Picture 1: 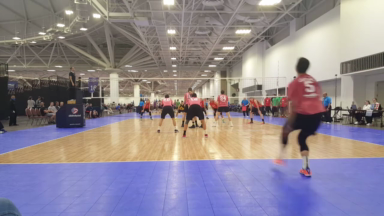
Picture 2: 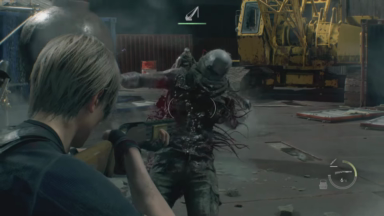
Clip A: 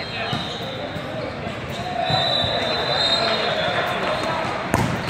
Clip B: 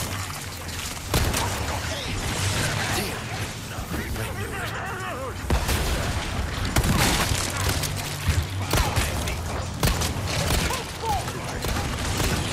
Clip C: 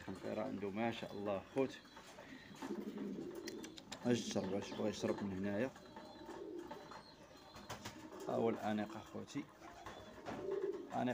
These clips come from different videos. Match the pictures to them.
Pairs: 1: A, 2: B